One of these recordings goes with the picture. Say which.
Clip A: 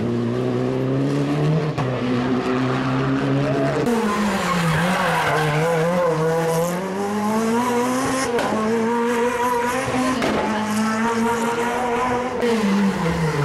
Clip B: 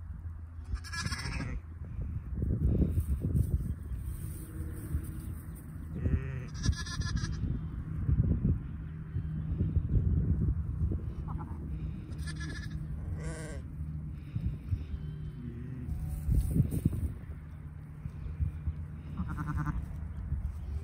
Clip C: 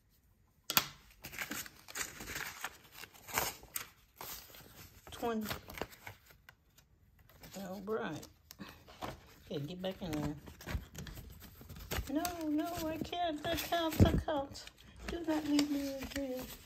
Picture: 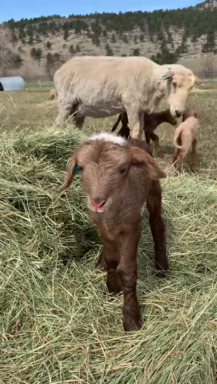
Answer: B